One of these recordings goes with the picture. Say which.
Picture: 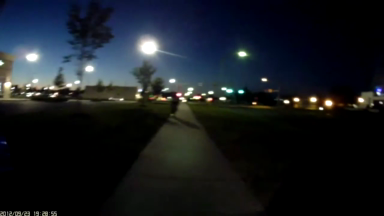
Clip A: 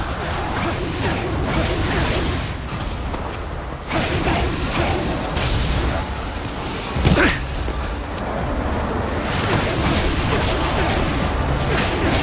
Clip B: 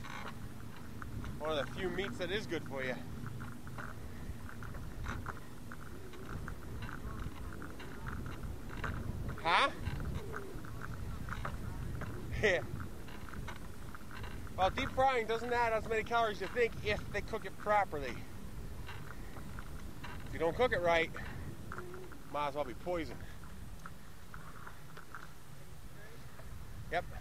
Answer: B